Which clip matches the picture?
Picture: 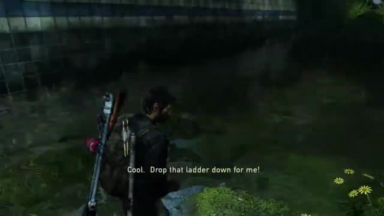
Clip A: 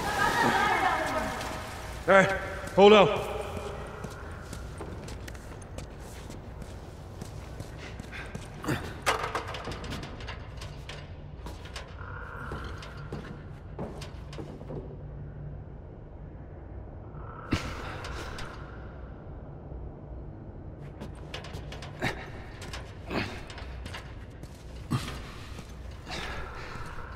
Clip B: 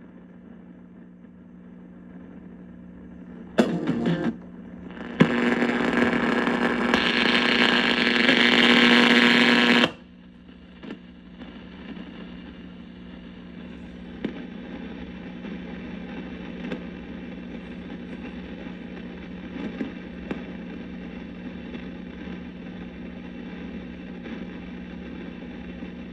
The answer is A